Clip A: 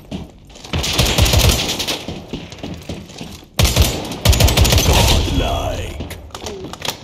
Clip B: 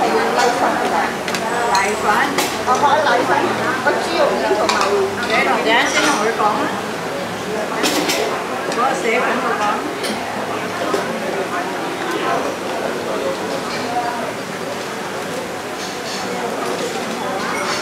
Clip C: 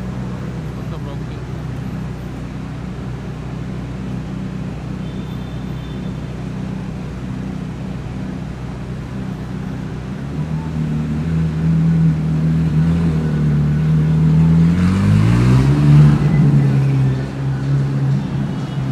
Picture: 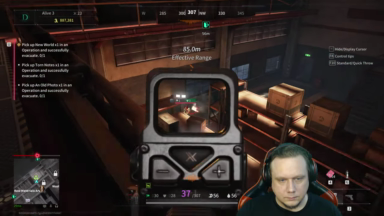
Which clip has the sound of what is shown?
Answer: A